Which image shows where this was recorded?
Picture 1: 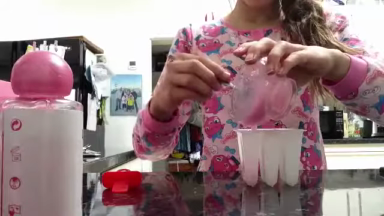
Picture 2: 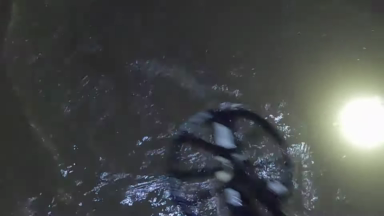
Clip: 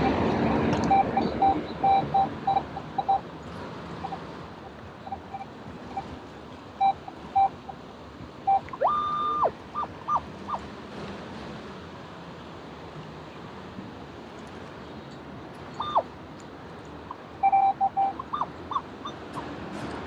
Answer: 2